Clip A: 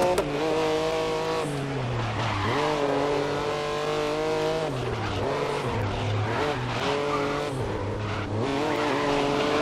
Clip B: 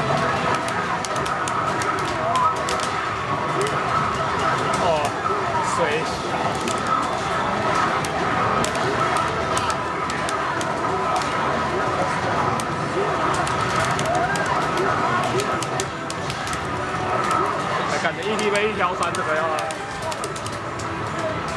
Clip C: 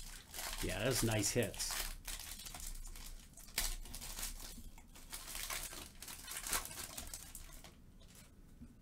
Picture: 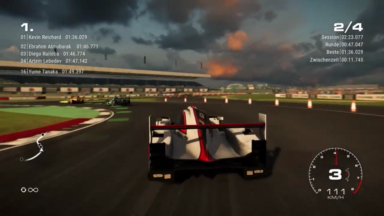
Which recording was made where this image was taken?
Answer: A